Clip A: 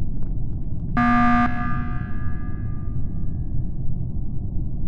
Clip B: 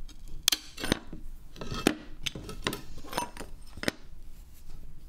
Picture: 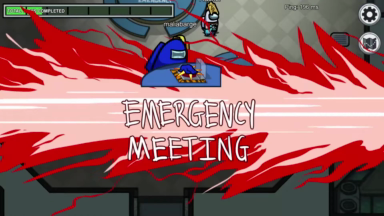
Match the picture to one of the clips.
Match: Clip A